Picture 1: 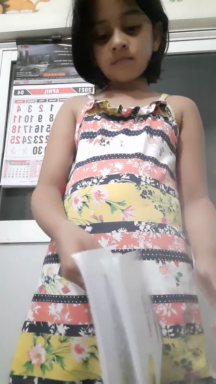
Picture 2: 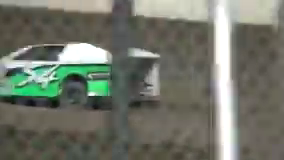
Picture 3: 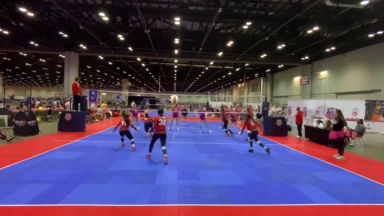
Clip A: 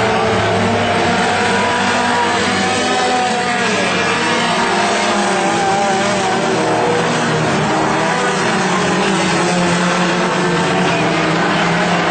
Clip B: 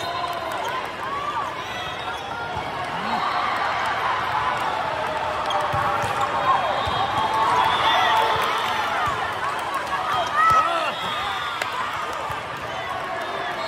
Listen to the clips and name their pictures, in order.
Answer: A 2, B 3